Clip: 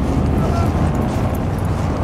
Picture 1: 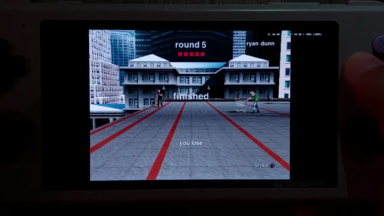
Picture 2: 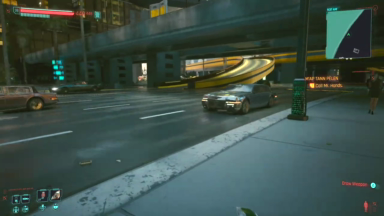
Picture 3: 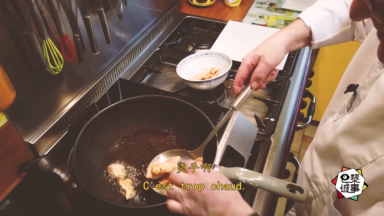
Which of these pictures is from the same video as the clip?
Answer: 2